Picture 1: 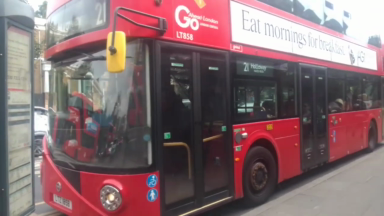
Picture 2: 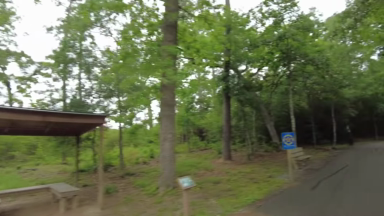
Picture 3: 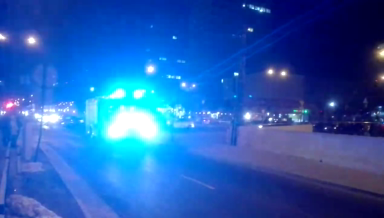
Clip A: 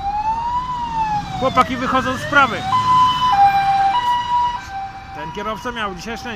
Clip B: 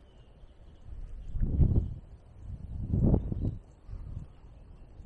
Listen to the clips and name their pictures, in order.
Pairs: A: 3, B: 2